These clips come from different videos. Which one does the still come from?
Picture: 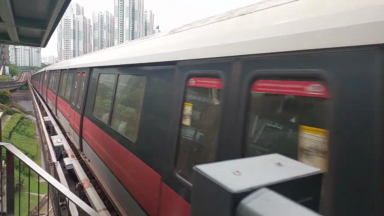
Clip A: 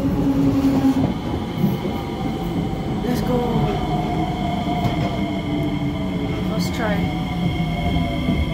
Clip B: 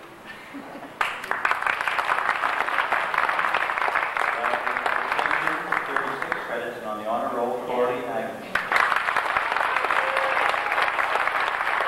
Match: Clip A